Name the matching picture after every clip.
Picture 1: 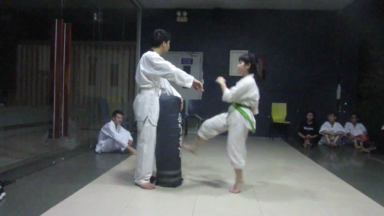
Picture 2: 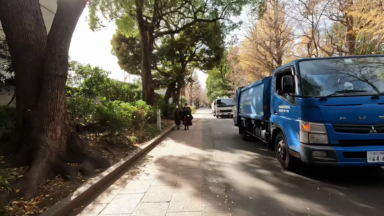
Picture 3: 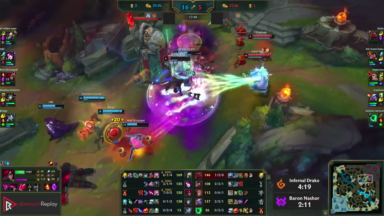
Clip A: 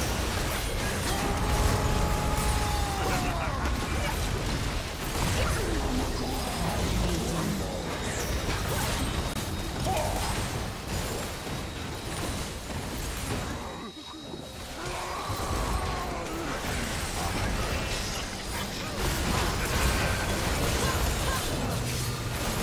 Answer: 3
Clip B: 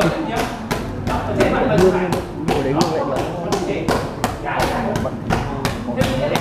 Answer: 1